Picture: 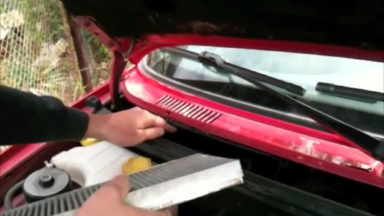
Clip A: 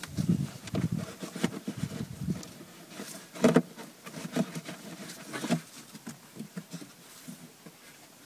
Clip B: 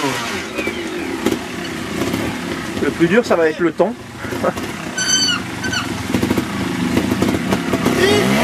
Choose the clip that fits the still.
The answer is A